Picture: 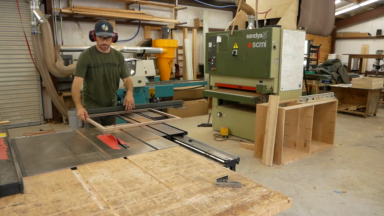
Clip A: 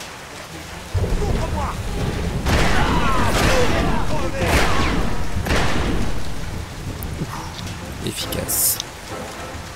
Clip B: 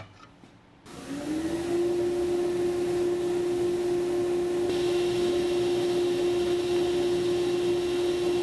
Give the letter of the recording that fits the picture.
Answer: B